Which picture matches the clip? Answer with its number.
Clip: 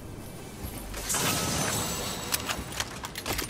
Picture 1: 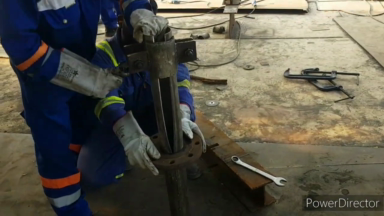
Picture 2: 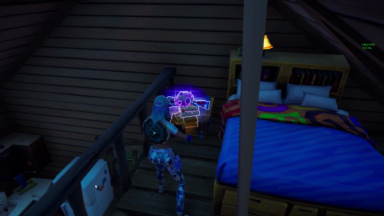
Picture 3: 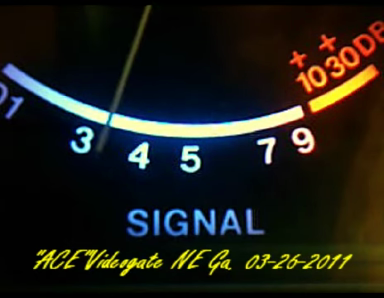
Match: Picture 2